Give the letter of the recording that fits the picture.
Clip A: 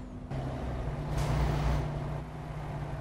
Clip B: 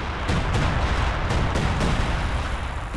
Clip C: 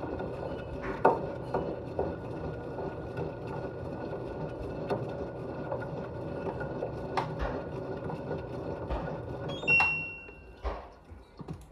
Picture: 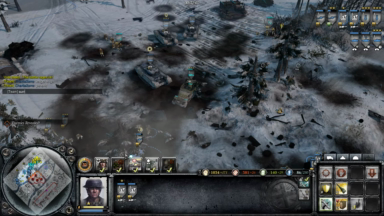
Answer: B